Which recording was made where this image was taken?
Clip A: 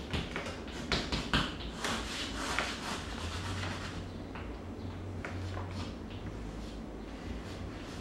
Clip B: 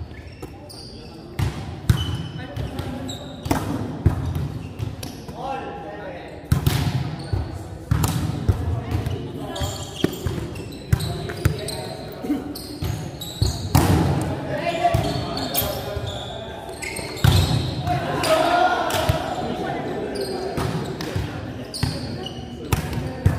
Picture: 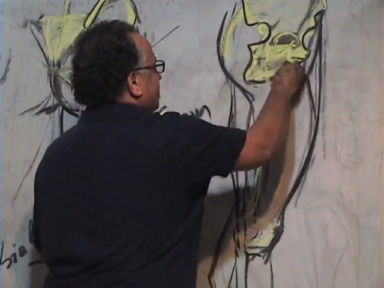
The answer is A